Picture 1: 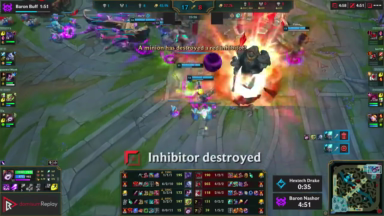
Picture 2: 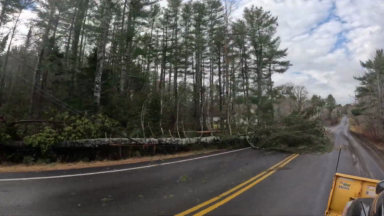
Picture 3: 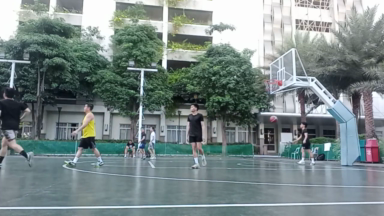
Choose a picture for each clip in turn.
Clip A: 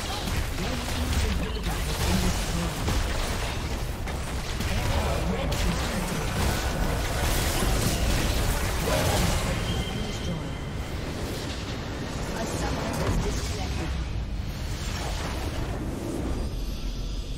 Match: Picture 1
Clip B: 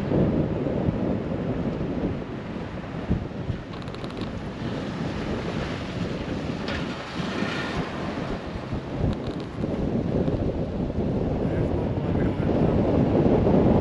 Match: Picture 2